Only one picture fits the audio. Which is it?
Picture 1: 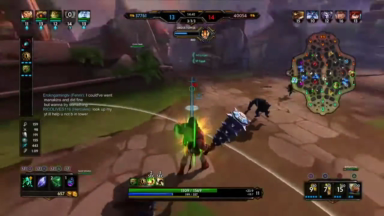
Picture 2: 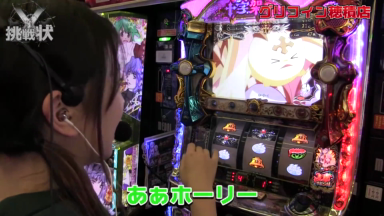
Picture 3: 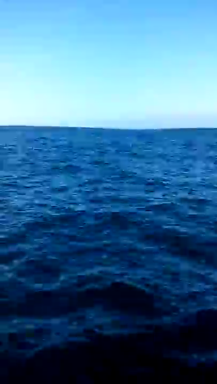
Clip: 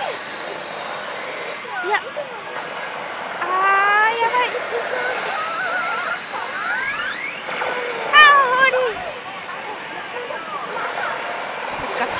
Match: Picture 2